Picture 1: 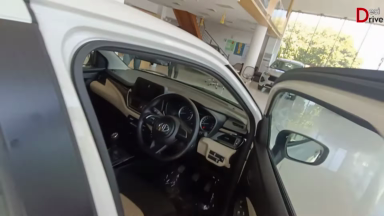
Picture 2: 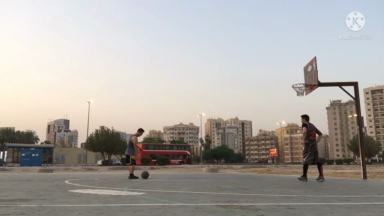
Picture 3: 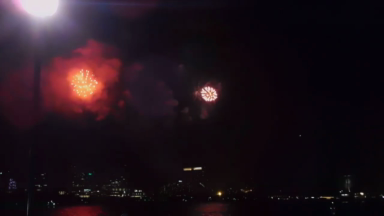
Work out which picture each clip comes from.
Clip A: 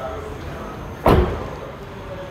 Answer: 1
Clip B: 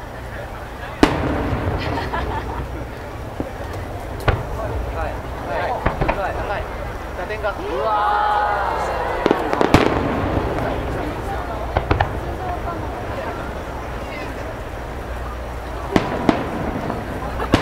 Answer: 3